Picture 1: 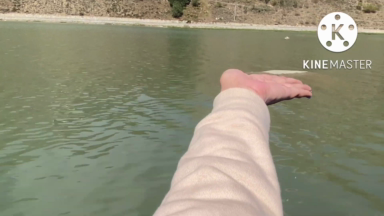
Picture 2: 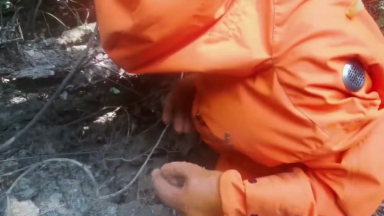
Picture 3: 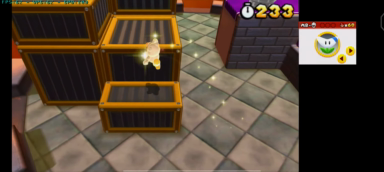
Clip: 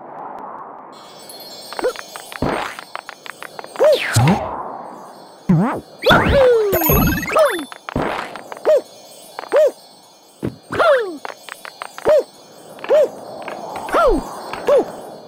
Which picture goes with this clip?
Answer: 3